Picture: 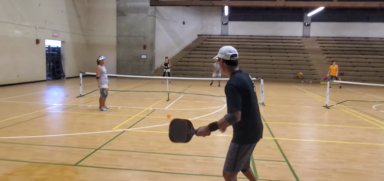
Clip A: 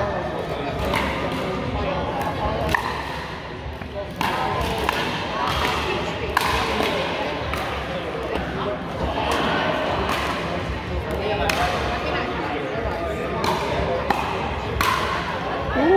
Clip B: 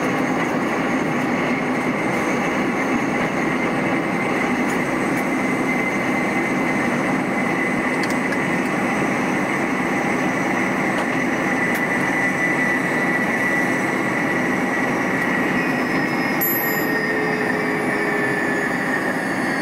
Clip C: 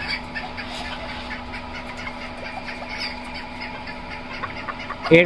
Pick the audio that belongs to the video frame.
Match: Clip A